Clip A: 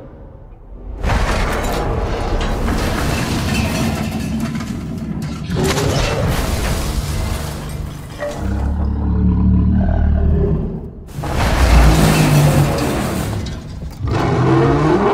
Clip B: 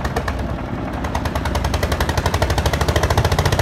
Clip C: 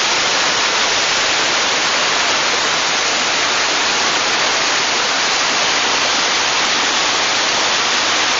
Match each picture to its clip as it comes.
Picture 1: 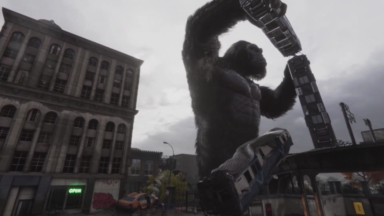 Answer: A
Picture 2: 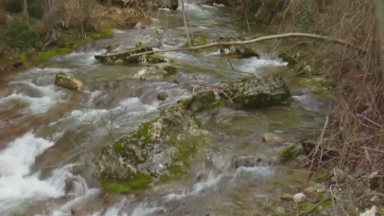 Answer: C